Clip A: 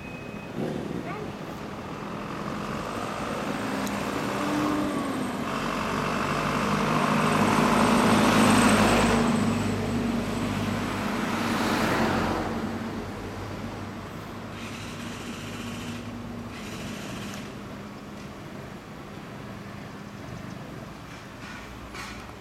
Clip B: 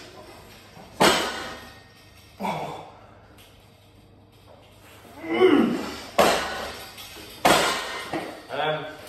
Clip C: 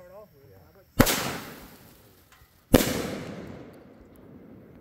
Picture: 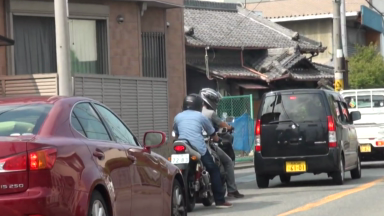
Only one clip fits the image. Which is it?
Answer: A